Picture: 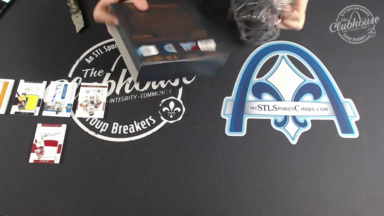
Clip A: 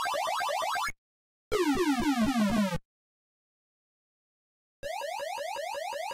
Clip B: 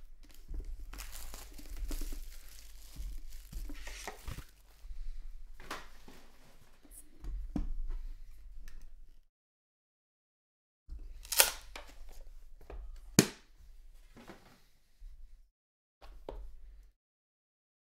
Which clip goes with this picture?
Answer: B